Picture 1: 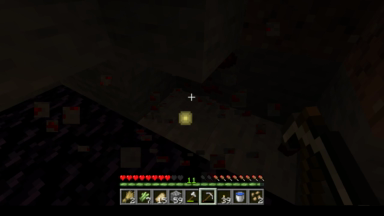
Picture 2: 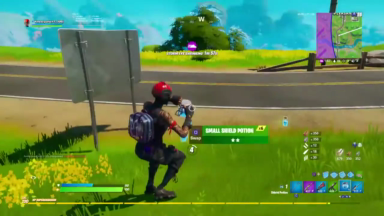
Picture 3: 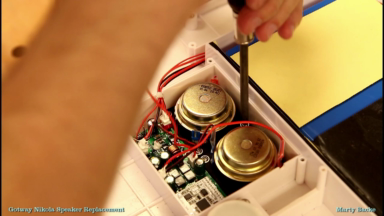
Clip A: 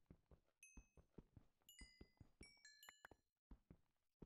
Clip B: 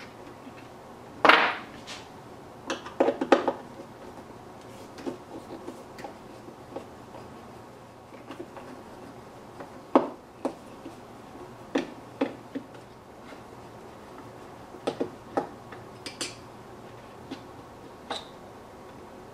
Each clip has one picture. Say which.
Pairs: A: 1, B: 3